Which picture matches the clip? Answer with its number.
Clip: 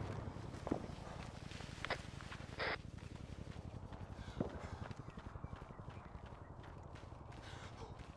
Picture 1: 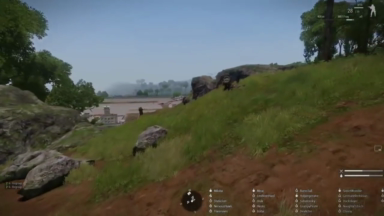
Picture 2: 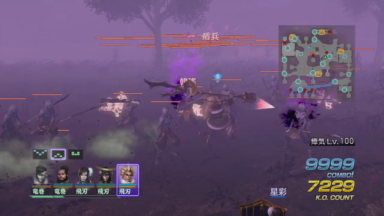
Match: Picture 1